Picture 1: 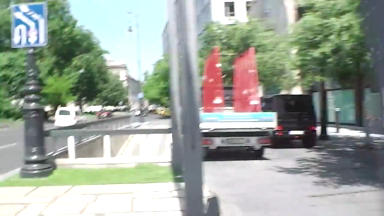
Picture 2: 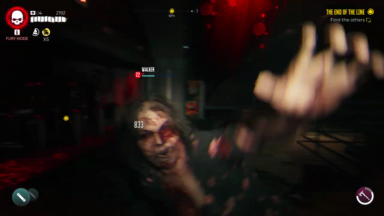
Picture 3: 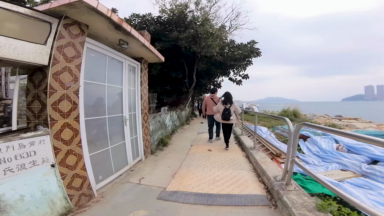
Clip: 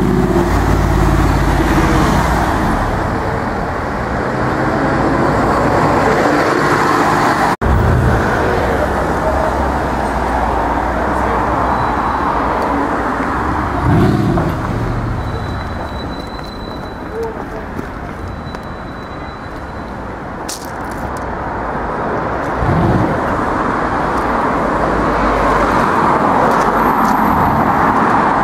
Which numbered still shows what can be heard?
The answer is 1